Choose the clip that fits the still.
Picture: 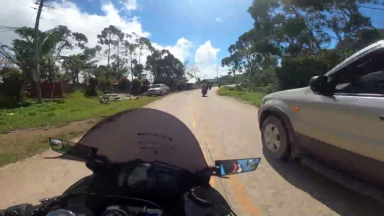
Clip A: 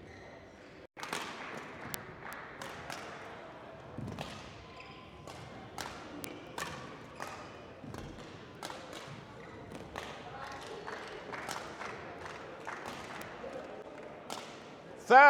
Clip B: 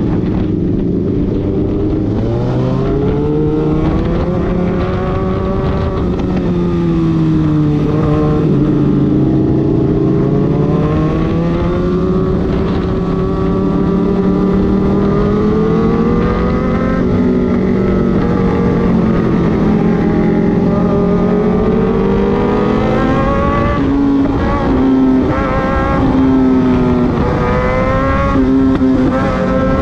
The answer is B